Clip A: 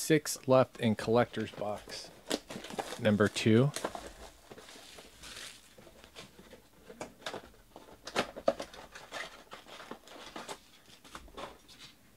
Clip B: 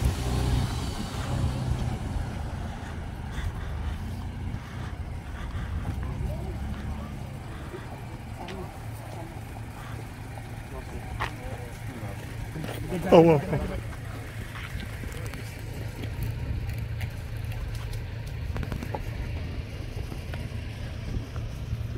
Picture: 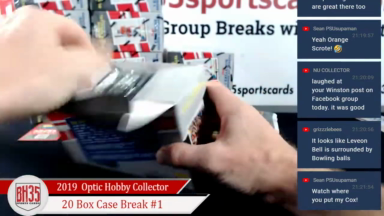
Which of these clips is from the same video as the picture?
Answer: A